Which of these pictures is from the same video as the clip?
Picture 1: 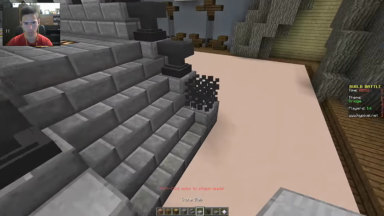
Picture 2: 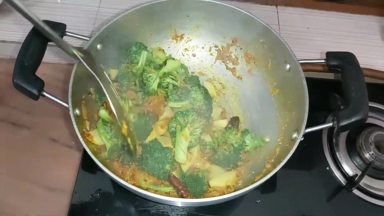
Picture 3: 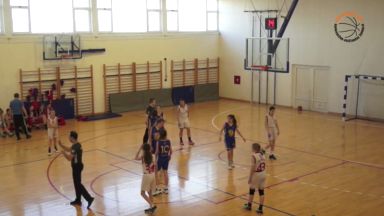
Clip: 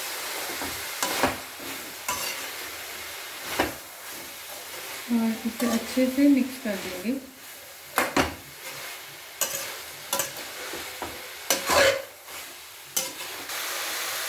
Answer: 2